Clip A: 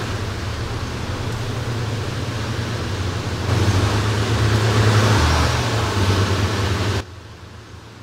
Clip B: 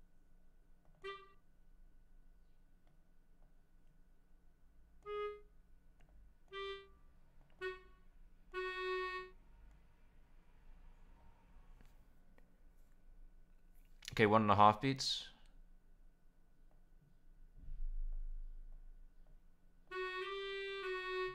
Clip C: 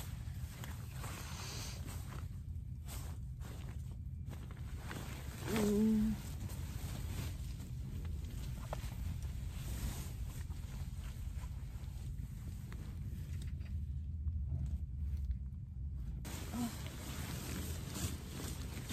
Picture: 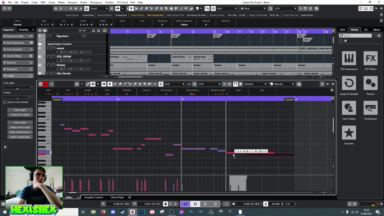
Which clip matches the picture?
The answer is B